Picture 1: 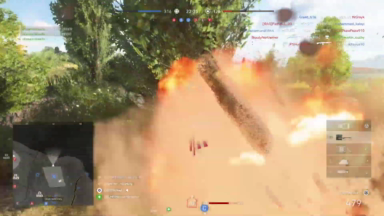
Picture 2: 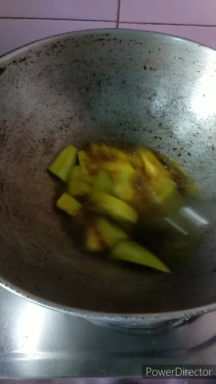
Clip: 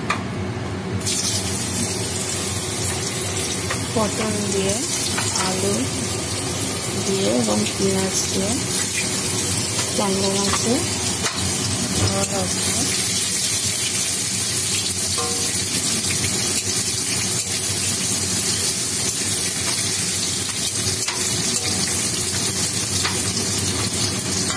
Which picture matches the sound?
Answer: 2